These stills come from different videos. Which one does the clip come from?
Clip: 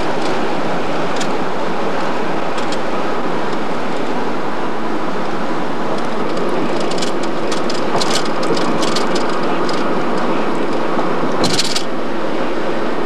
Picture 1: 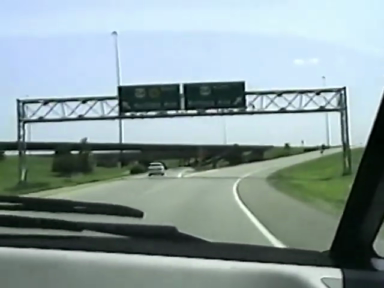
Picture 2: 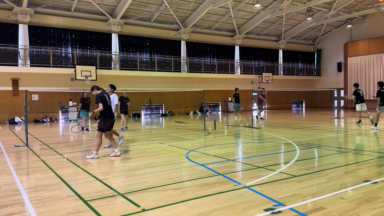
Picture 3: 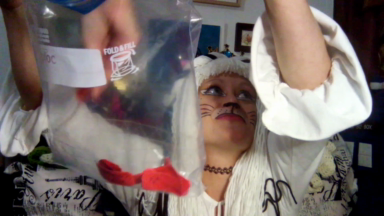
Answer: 1